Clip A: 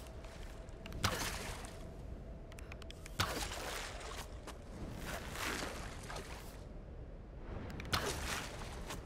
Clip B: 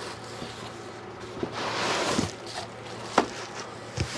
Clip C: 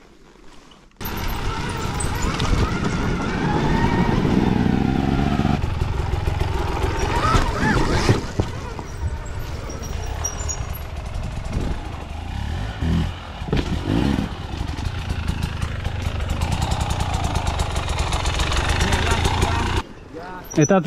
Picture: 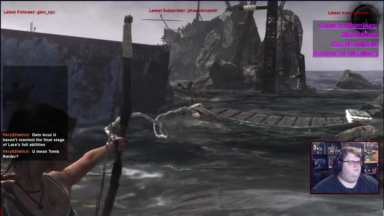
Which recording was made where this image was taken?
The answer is A